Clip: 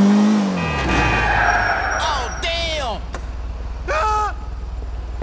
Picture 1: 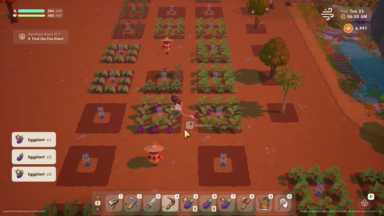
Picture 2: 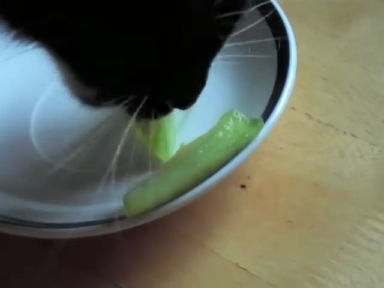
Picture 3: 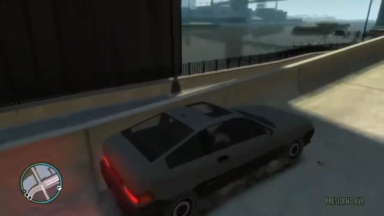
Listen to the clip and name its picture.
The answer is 3